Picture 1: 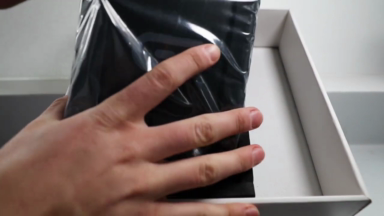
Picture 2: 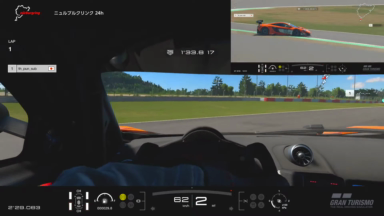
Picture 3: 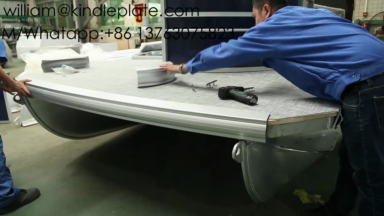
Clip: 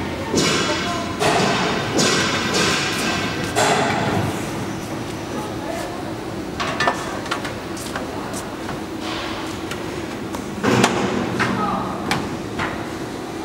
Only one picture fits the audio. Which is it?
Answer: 3